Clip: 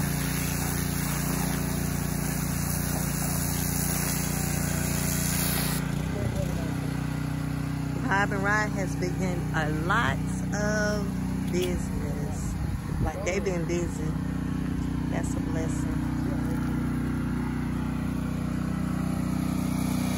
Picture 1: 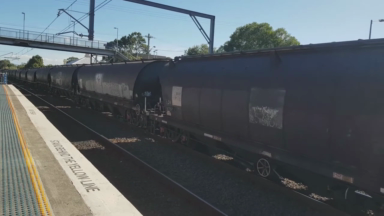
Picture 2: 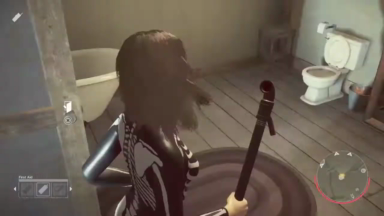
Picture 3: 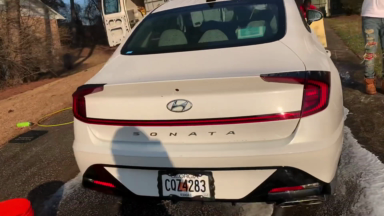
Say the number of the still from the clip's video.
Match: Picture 3